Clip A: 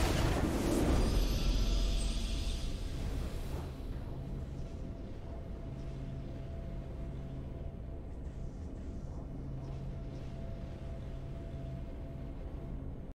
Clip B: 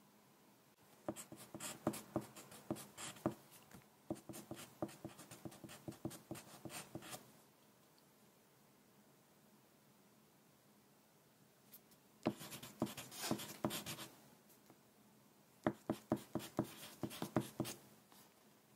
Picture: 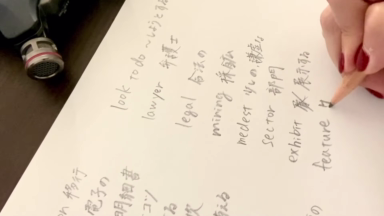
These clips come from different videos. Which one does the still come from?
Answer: B